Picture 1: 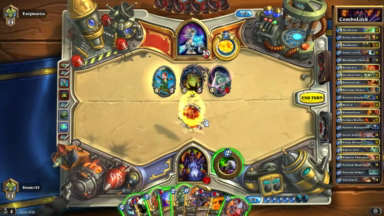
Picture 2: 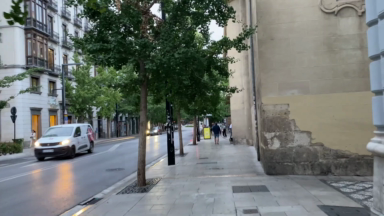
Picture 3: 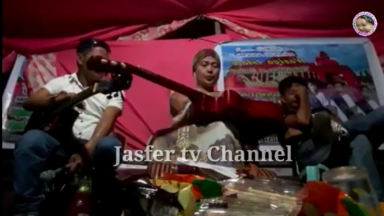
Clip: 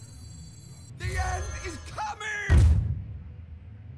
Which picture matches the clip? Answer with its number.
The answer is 1